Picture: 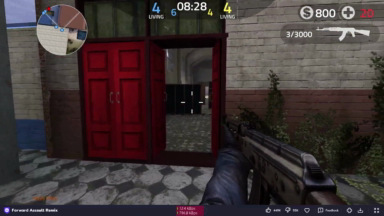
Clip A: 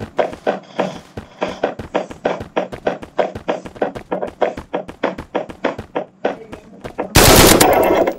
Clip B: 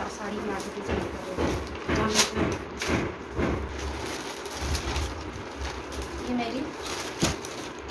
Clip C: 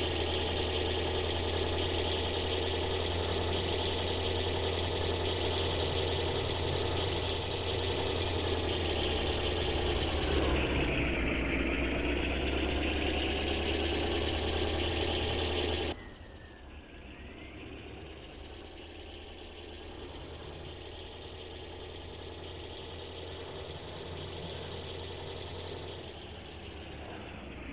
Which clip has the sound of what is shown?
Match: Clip A